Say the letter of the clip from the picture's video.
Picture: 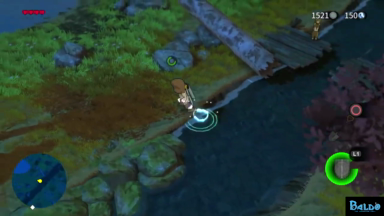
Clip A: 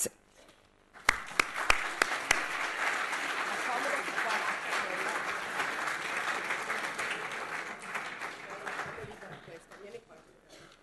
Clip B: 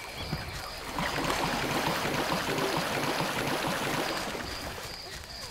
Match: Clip B